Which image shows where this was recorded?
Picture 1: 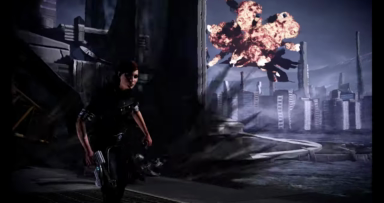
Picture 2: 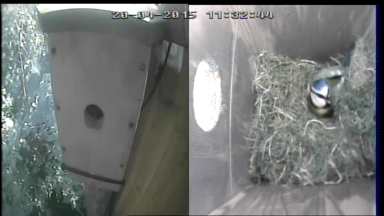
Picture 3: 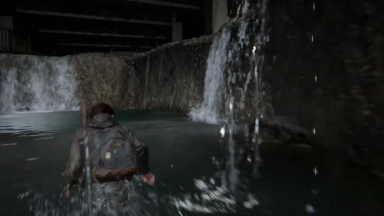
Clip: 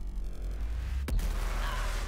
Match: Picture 1